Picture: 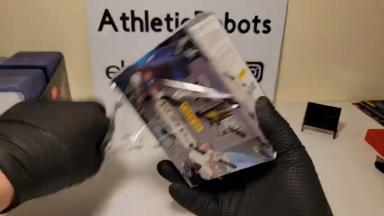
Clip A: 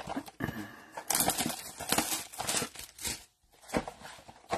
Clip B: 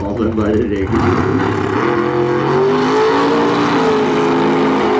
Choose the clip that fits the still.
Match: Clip A